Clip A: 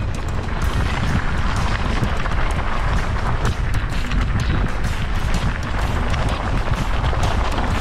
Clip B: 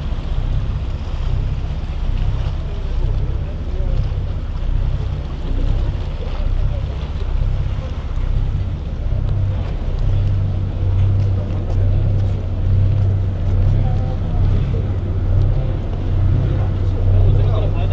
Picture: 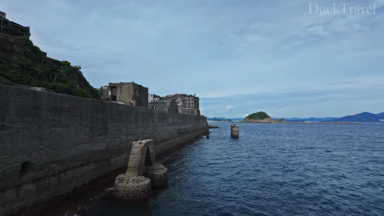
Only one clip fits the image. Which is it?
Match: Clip B